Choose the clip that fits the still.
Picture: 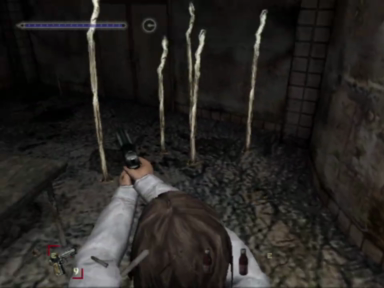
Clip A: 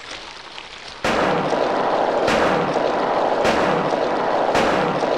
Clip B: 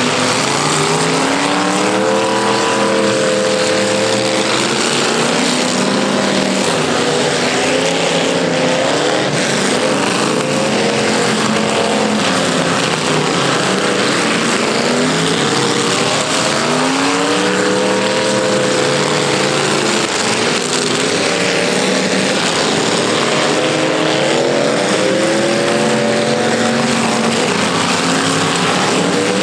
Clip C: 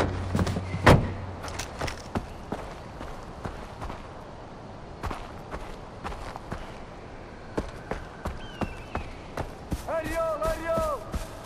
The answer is A